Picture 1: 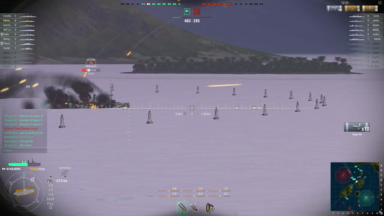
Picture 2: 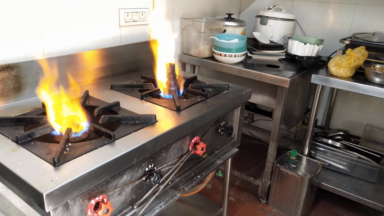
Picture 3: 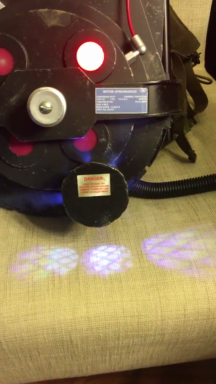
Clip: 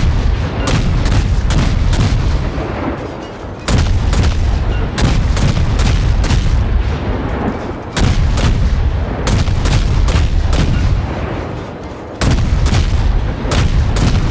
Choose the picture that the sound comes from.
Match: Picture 1